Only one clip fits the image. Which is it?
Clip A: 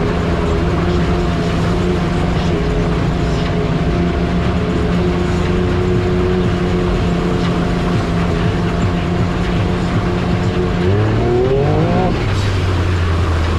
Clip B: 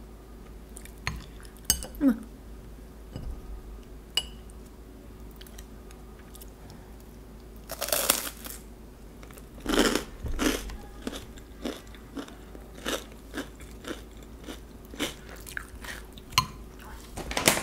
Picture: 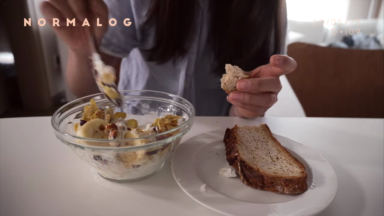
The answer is B